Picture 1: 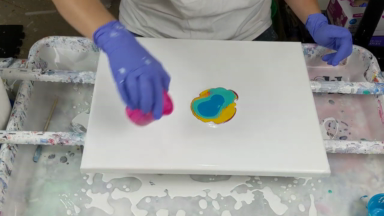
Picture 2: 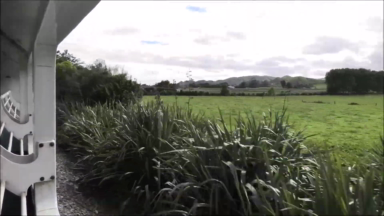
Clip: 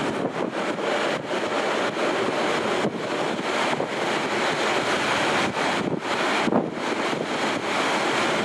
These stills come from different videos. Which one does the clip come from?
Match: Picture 2